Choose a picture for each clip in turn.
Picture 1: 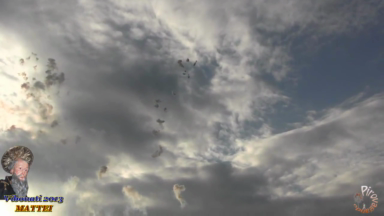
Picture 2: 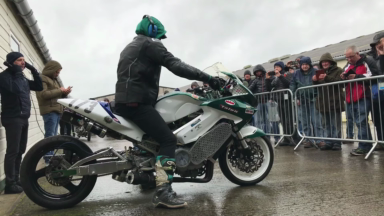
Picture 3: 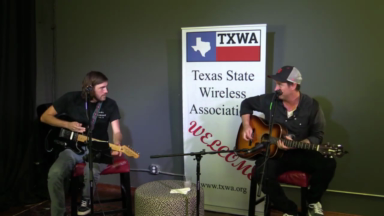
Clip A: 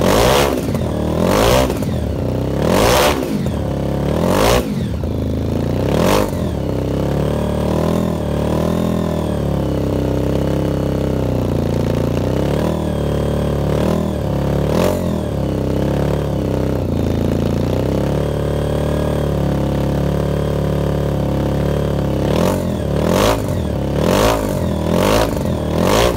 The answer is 2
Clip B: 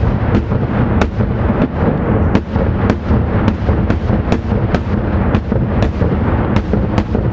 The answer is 1